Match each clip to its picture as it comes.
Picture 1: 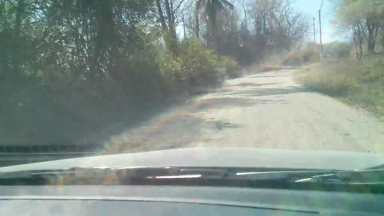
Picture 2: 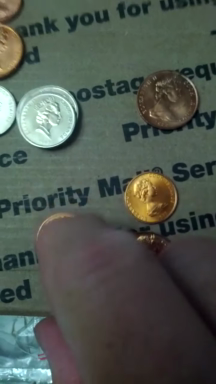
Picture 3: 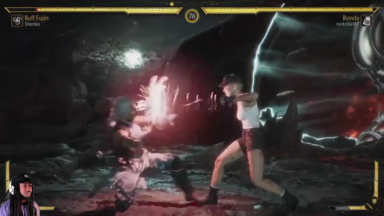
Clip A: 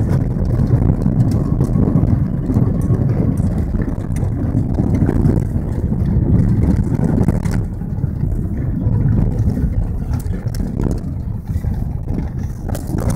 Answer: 1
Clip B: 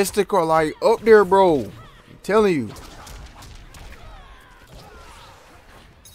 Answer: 3